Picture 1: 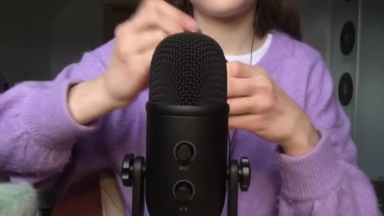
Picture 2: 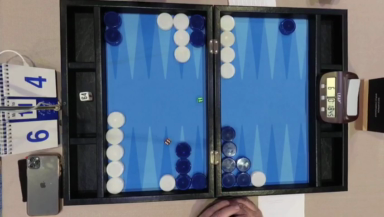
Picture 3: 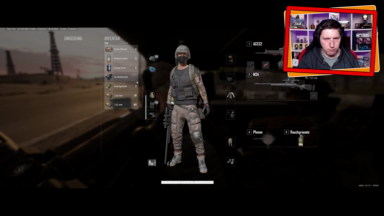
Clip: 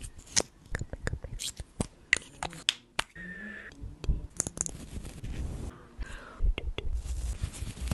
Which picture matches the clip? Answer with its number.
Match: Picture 1